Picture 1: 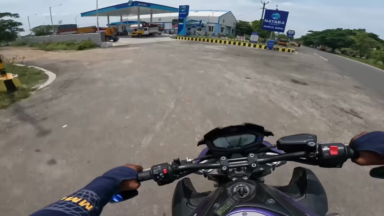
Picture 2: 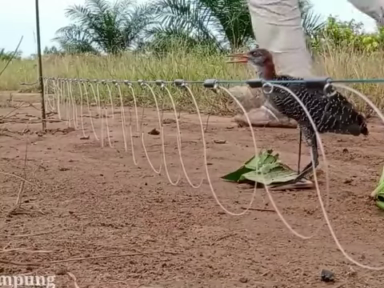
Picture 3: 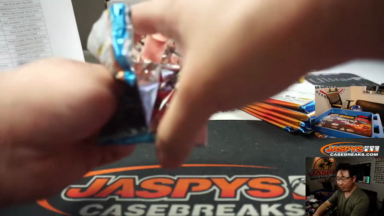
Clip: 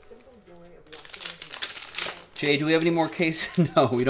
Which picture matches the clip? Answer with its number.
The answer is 3